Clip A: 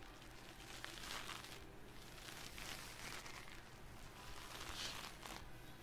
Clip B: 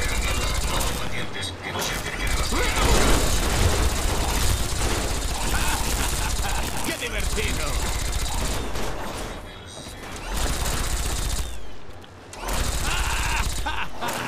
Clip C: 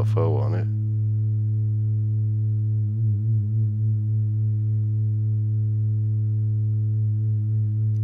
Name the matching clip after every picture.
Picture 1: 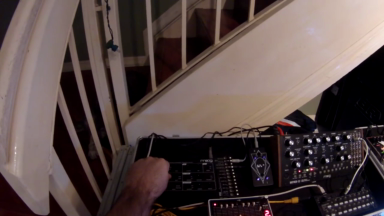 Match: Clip C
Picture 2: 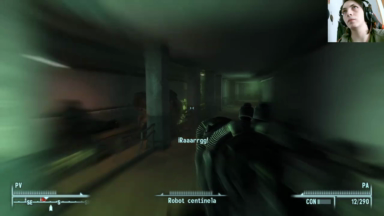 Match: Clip B